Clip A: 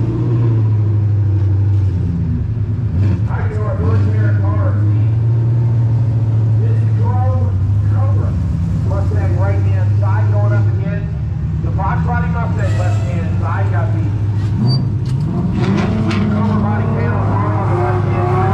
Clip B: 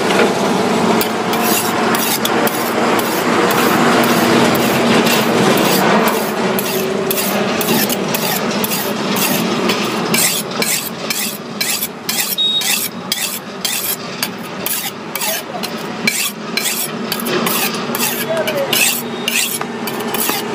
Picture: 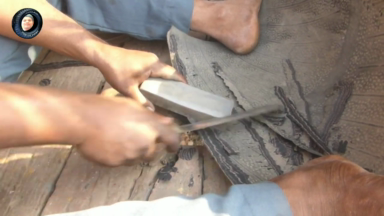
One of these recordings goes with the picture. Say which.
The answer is B